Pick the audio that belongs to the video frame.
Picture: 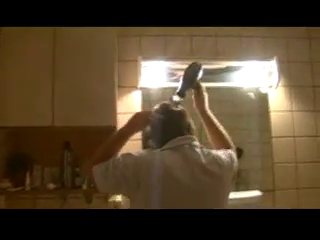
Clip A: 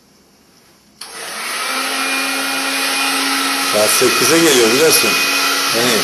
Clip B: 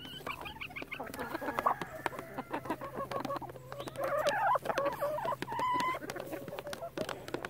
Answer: A